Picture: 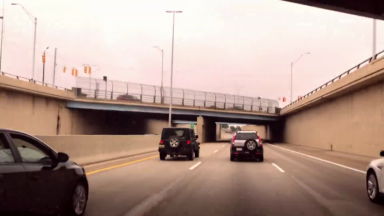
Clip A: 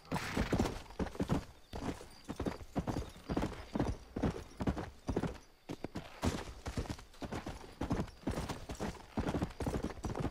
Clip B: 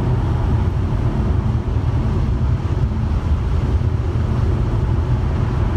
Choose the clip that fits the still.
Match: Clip B